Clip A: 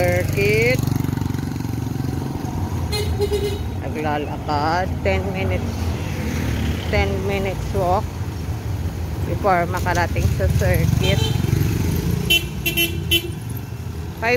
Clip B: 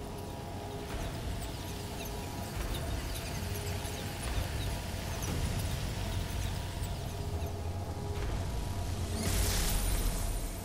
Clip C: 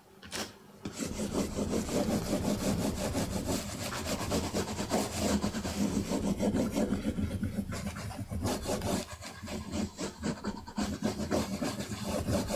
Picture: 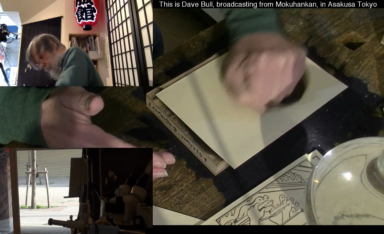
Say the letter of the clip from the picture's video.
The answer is C